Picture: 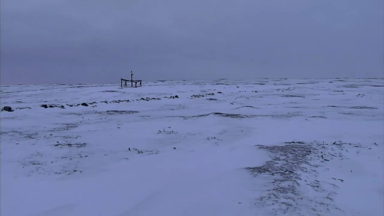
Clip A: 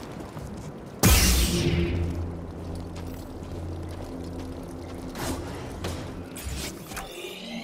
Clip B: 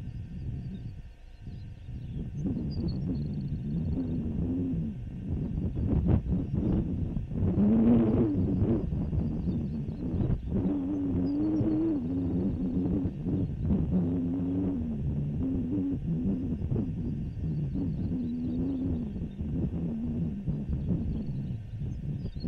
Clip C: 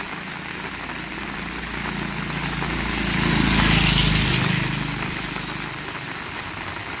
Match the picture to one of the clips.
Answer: B